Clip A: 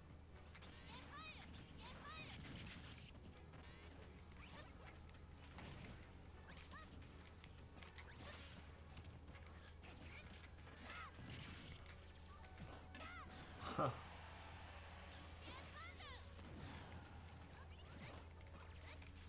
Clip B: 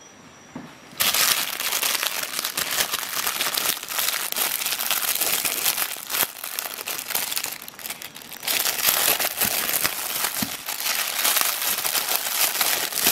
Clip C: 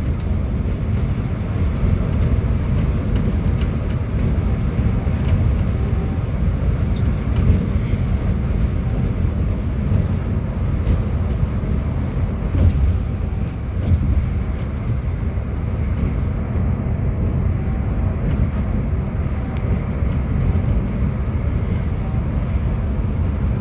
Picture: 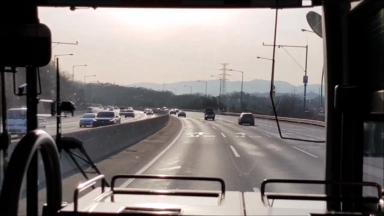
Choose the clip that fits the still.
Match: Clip C